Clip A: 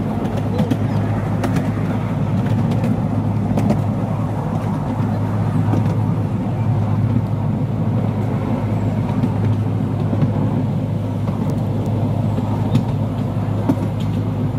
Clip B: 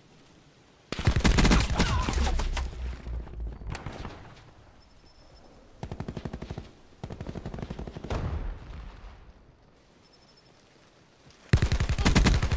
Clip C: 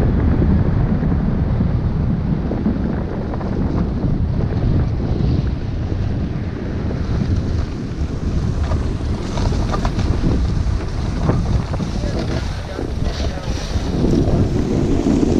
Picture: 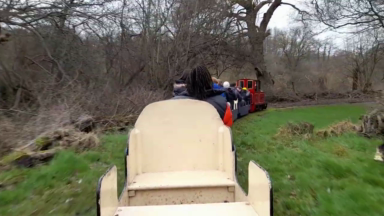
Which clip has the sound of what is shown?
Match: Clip A